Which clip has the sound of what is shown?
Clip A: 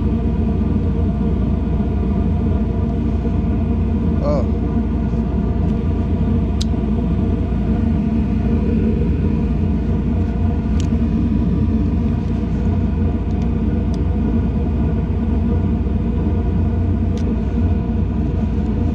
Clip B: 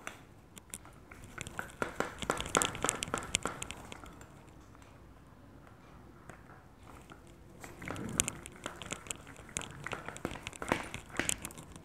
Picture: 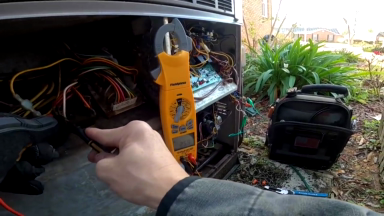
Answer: A